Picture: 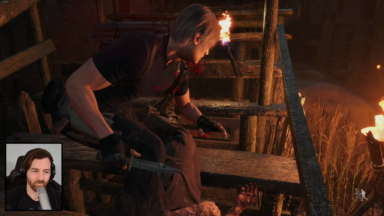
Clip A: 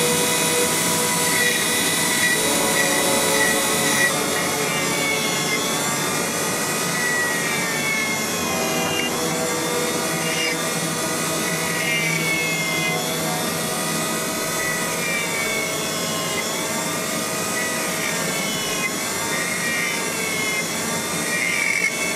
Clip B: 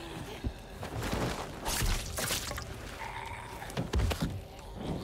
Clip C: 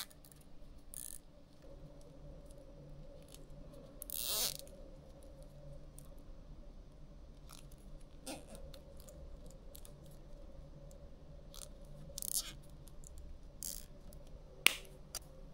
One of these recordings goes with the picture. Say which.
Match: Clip B